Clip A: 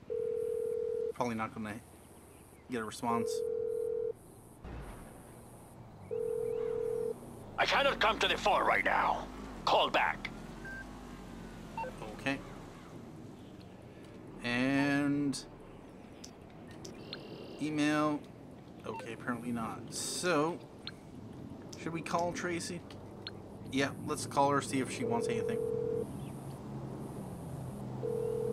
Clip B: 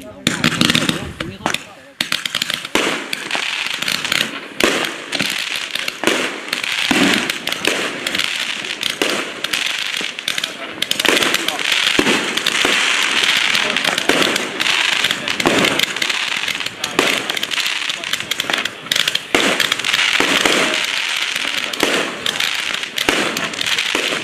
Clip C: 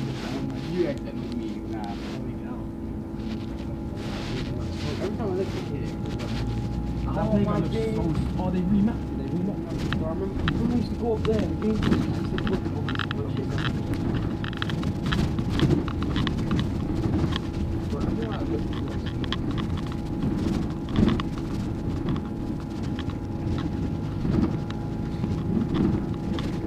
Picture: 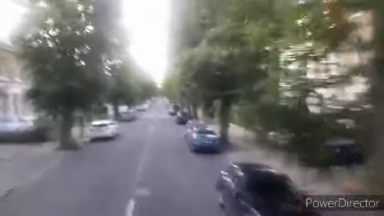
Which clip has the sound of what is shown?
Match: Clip C